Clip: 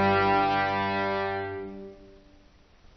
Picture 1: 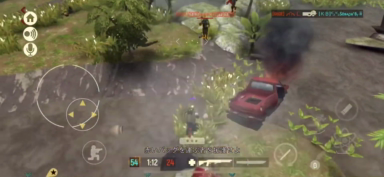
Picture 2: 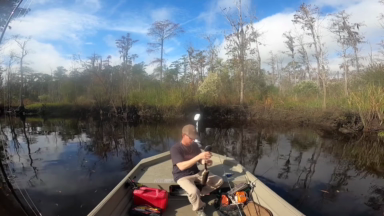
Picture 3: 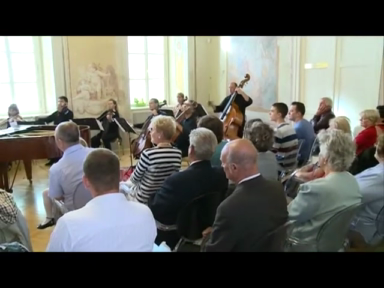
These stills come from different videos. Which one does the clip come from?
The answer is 3